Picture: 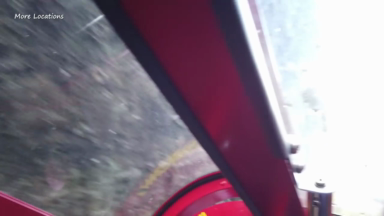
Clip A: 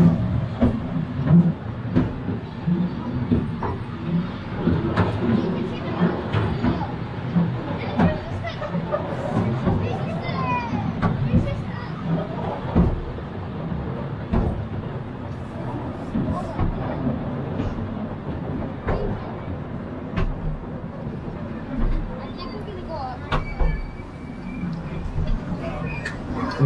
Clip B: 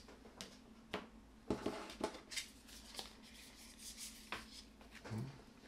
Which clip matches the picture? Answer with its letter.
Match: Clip A